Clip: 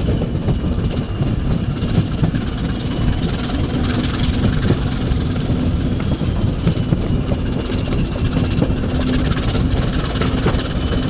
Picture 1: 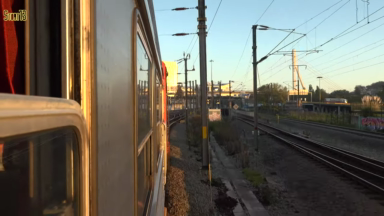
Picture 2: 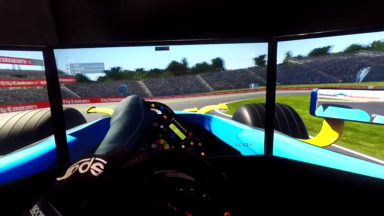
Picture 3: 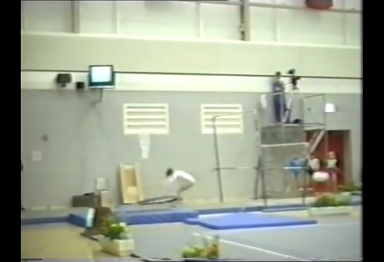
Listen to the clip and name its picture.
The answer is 1